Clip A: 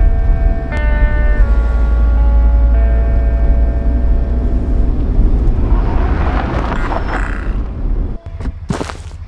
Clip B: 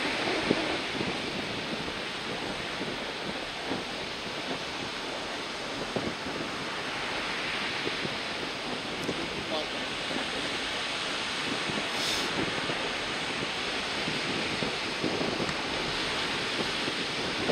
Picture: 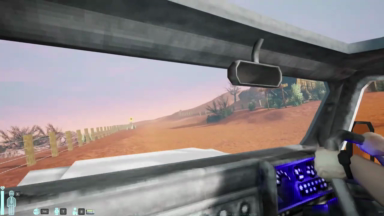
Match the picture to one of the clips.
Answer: A